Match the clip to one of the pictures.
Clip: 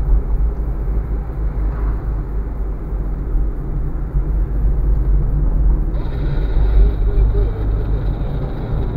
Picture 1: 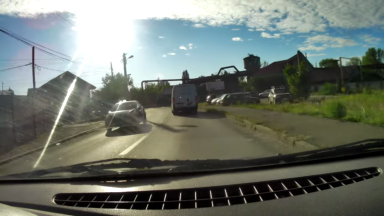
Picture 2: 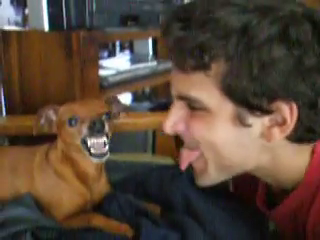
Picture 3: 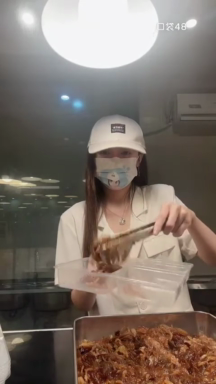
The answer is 1